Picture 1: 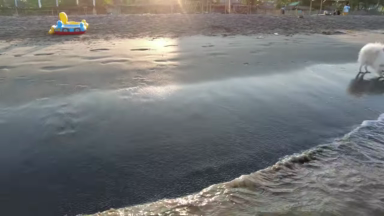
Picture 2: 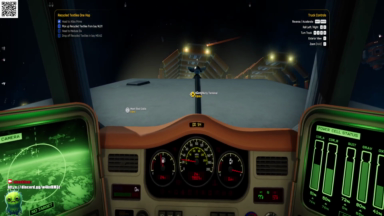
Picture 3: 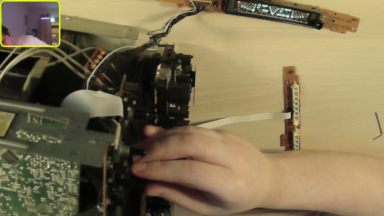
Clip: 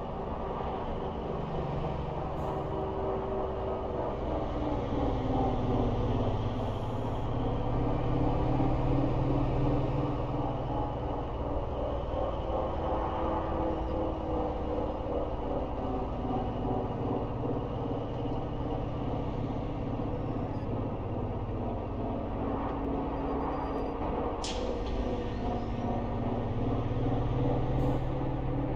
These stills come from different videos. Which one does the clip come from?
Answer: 2